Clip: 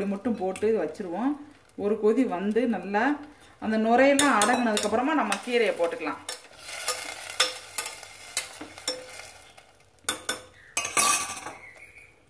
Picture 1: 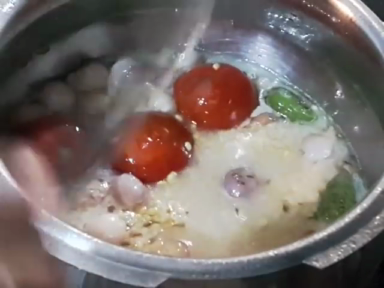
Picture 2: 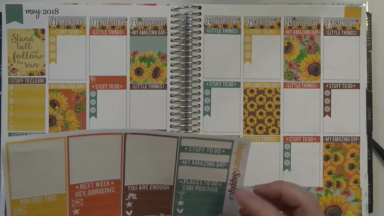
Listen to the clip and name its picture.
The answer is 1